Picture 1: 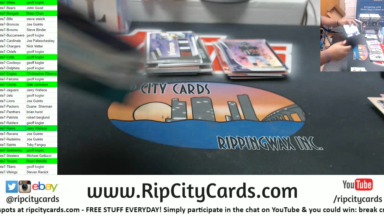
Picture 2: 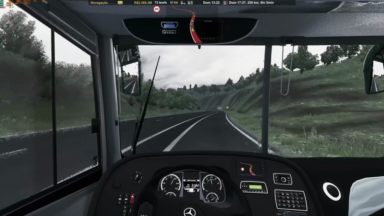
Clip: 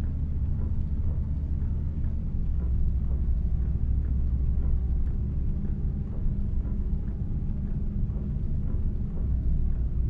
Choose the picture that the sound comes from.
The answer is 2